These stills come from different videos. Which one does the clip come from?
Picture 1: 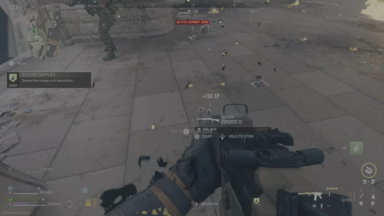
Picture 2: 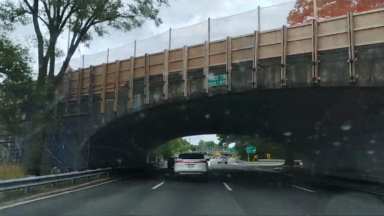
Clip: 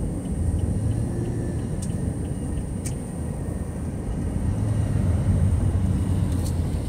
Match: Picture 2